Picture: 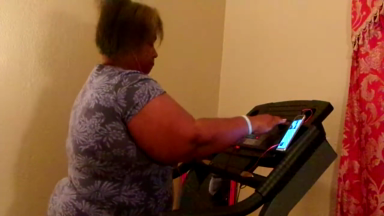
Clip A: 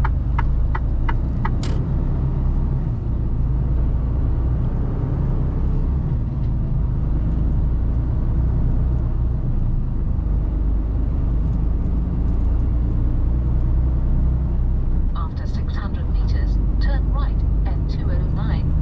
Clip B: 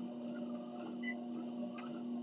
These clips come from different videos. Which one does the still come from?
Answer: B